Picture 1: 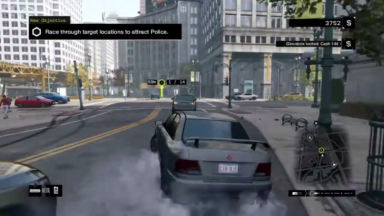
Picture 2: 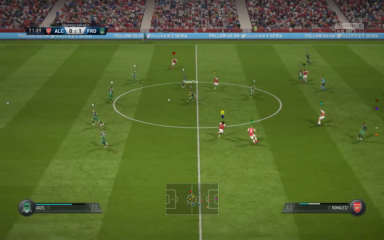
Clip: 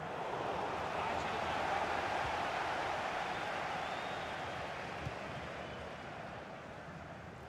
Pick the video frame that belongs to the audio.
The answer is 2